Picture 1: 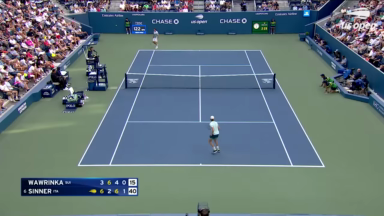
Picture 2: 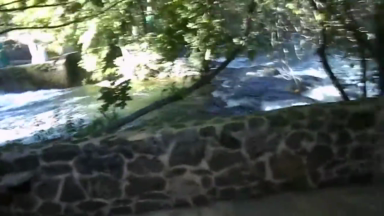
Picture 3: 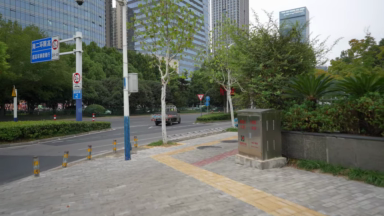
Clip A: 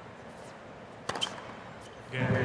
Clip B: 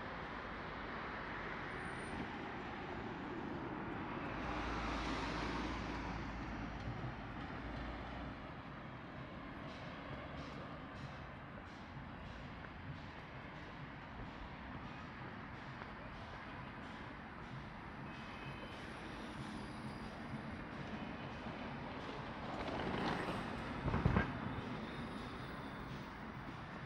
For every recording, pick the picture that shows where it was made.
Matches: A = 1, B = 3